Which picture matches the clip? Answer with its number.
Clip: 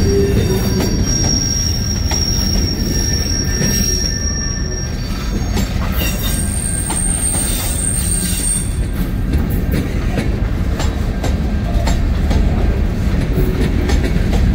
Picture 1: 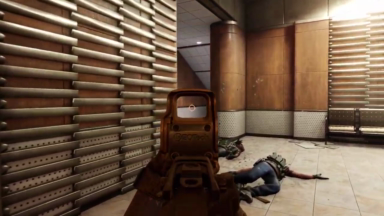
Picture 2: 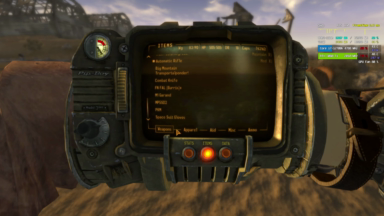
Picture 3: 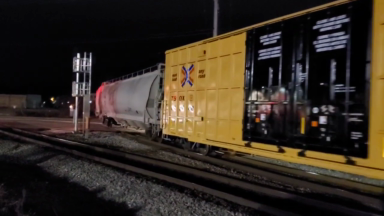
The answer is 3